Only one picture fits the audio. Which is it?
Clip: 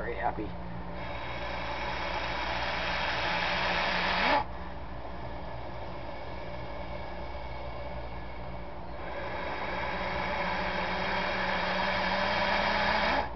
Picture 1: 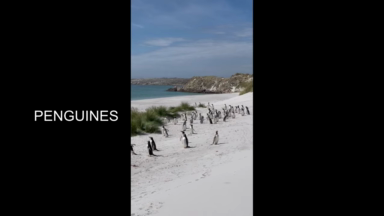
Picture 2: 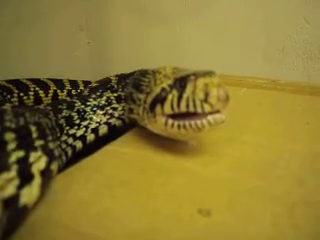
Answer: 2